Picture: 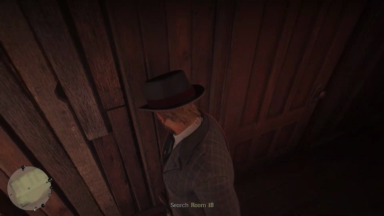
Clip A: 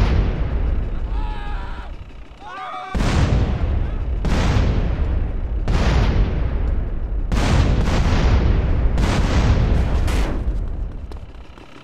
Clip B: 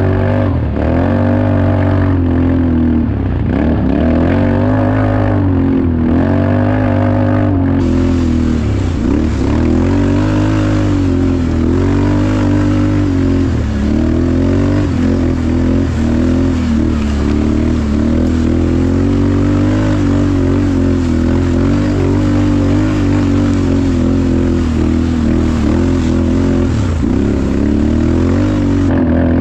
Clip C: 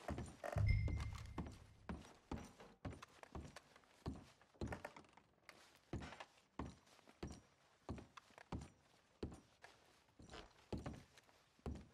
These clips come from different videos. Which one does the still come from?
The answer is C